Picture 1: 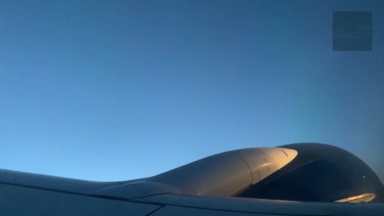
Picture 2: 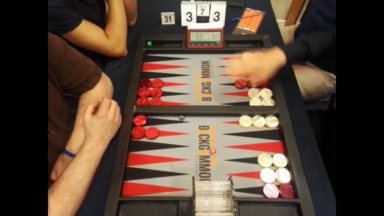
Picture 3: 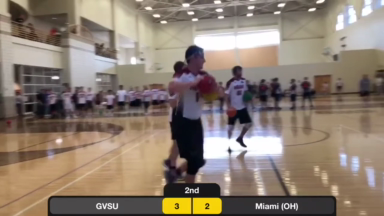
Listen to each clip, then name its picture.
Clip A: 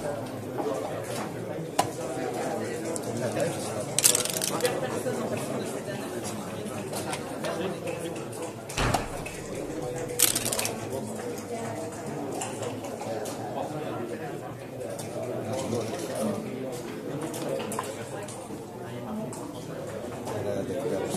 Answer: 2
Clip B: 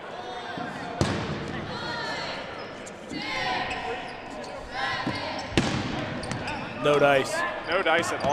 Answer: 3